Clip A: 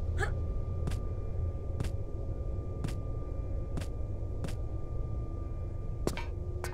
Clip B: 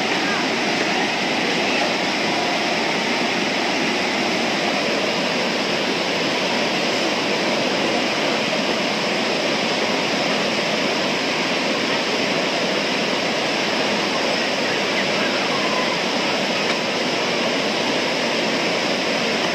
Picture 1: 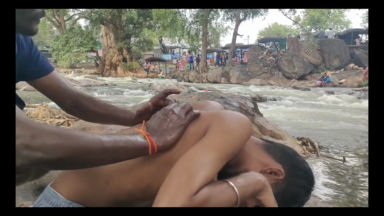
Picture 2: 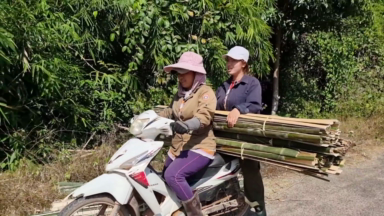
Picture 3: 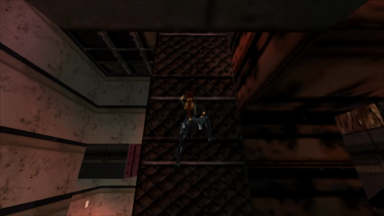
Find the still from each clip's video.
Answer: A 3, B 1